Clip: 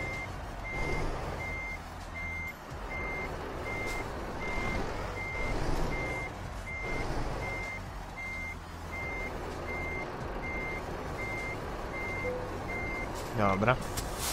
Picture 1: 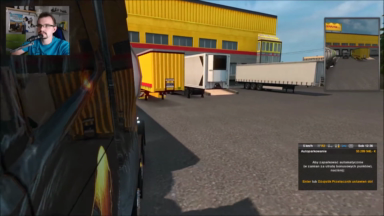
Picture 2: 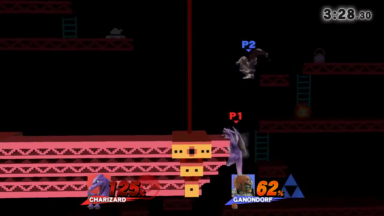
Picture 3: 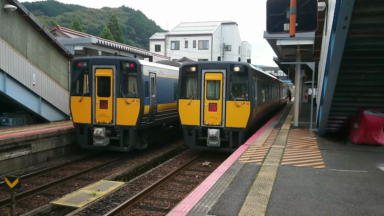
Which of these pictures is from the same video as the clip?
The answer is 1